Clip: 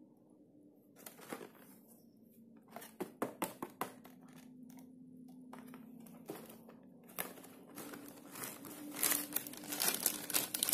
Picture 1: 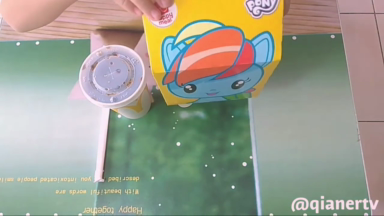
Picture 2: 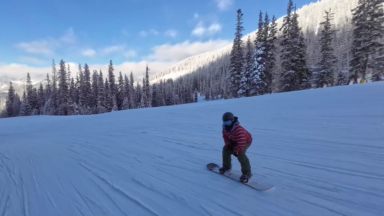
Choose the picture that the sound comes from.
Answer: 1